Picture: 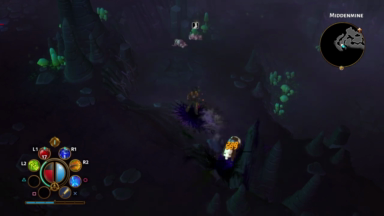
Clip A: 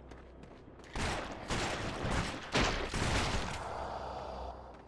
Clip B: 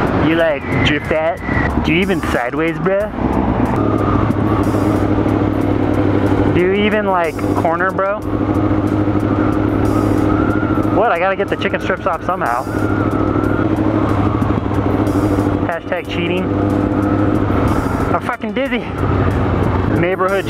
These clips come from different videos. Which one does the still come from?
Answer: A